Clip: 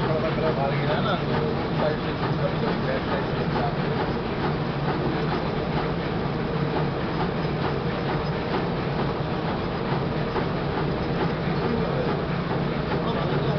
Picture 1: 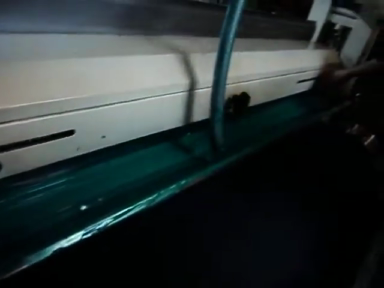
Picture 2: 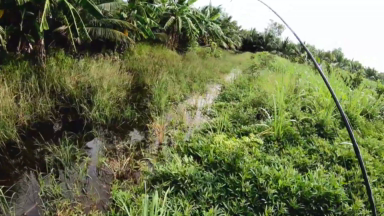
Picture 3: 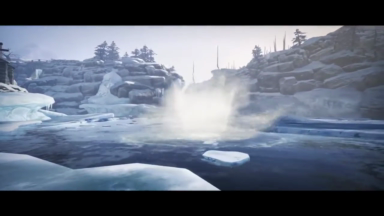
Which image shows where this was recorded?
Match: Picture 1